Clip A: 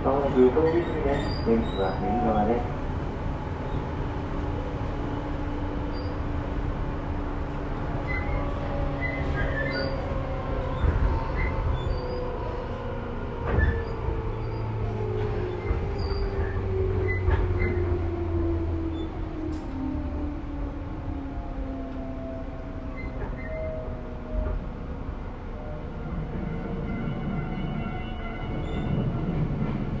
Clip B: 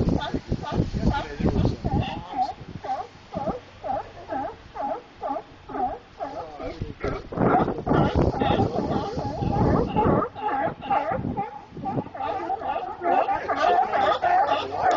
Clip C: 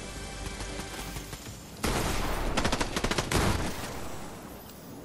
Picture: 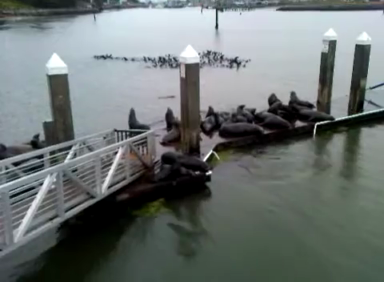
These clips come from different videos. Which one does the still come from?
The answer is B